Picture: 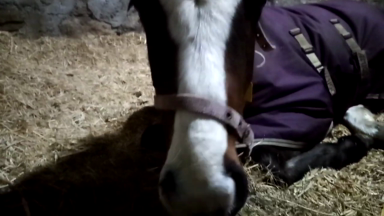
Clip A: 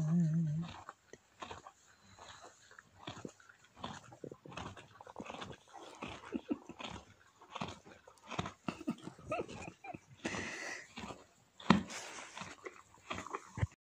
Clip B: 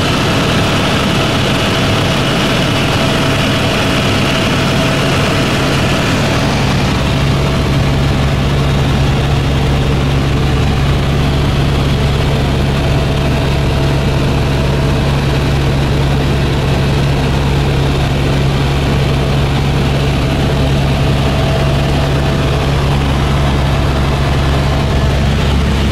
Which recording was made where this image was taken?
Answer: A